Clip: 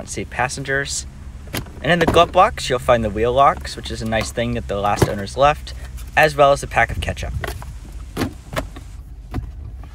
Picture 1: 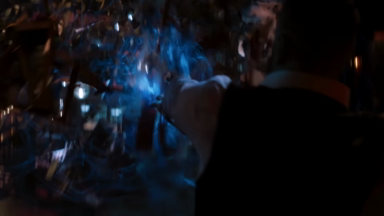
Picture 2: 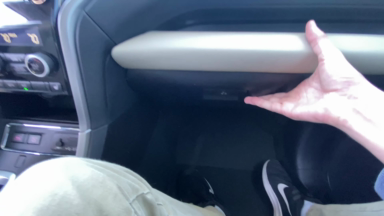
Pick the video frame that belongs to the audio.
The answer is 2